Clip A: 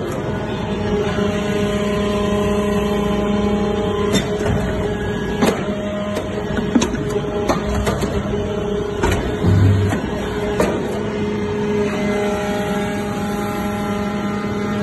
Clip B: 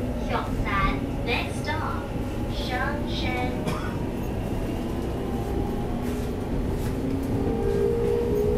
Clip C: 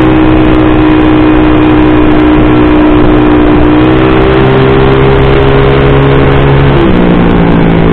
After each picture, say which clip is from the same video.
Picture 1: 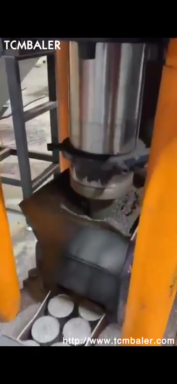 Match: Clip A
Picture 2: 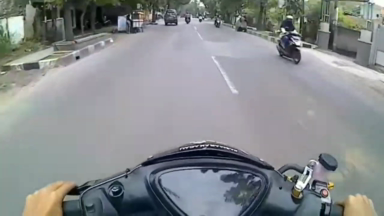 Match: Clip C